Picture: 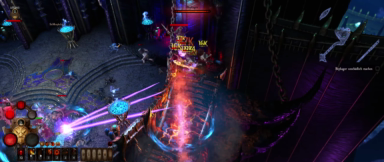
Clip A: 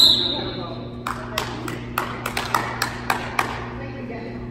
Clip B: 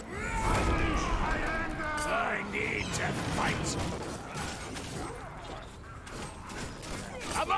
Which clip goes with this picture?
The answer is B